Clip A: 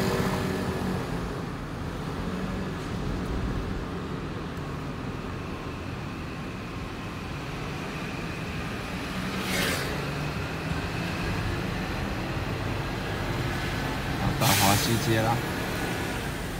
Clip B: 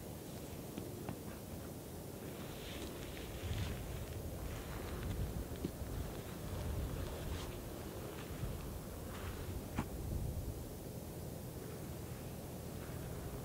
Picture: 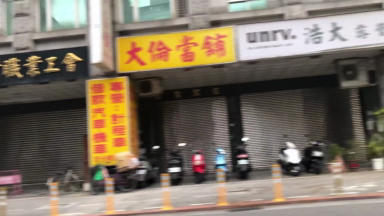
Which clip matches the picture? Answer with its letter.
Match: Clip A